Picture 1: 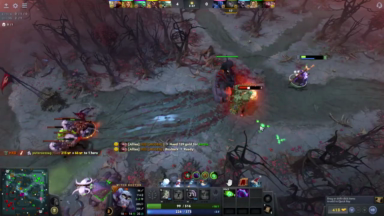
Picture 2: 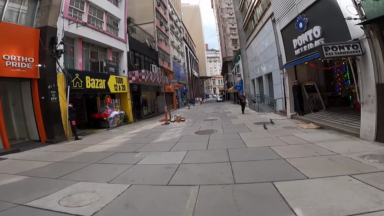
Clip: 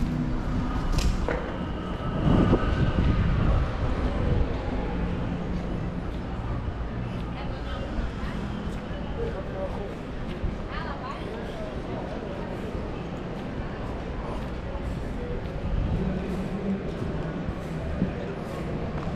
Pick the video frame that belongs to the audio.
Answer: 2